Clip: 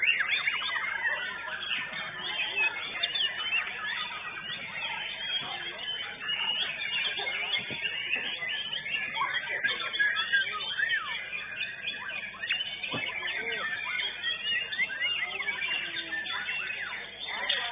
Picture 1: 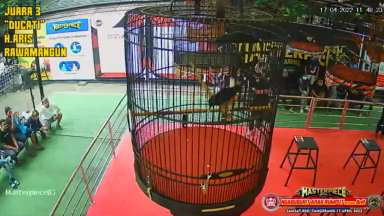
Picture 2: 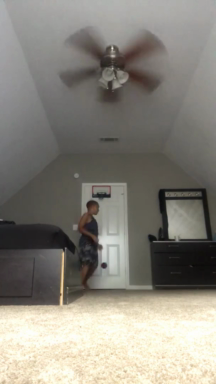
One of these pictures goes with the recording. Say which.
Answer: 1